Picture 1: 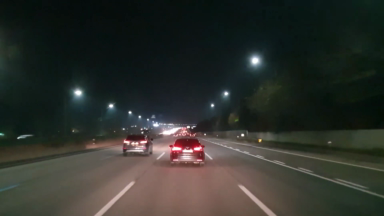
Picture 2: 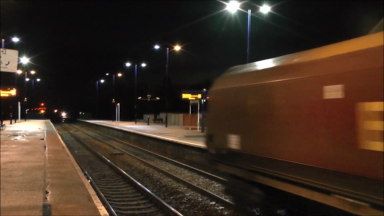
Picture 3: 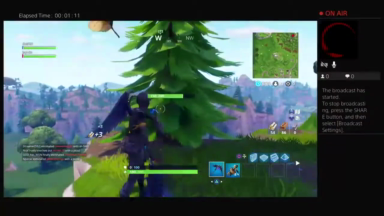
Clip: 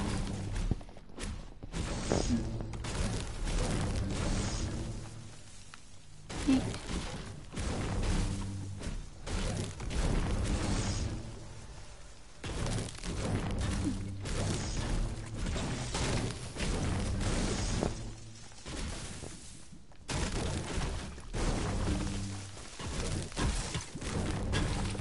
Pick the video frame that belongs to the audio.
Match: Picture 3